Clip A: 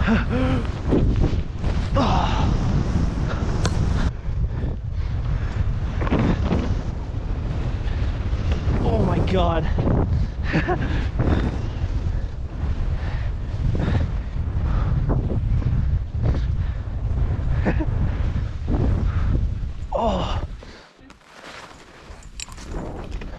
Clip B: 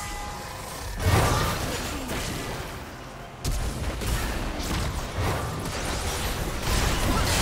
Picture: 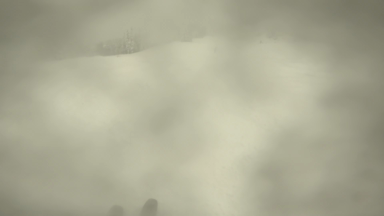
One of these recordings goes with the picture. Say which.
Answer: A